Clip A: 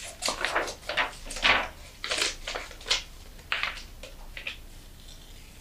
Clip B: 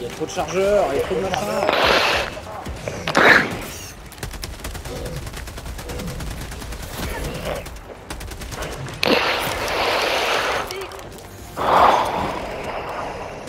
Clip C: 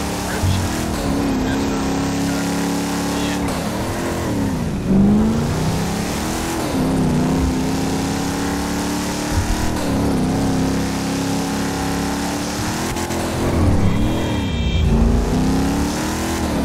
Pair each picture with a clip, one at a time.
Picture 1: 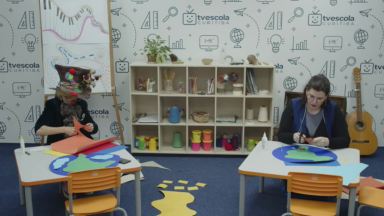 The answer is A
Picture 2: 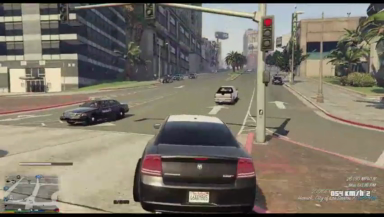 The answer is C